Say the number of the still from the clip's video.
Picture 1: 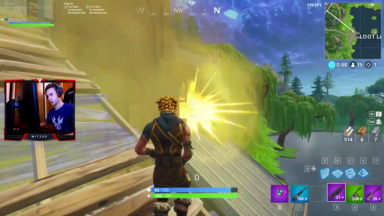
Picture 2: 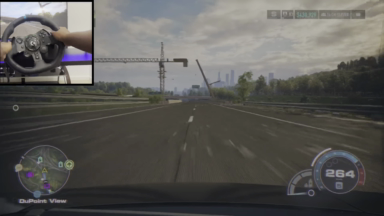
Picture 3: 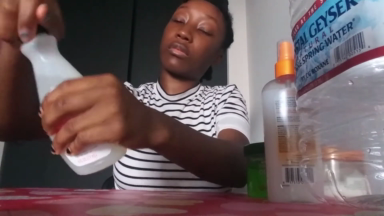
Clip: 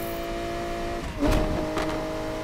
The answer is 2